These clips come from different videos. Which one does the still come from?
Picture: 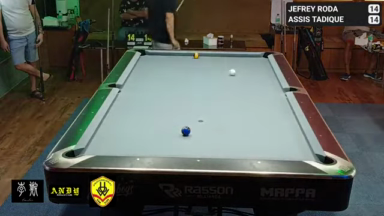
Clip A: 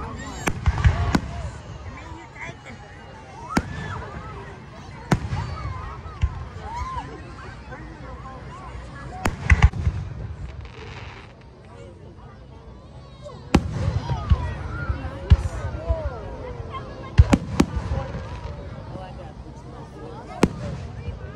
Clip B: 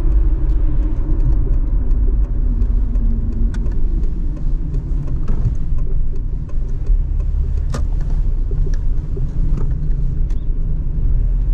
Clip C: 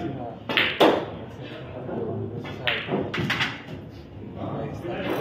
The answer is C